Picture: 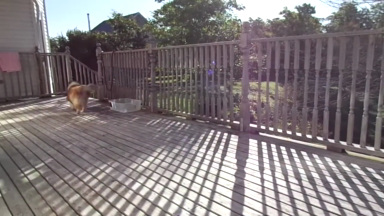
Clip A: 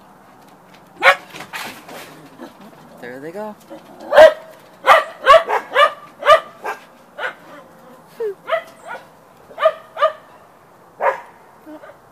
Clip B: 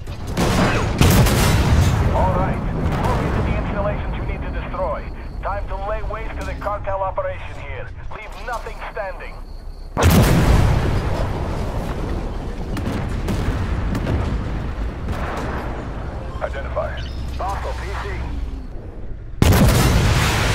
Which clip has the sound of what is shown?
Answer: A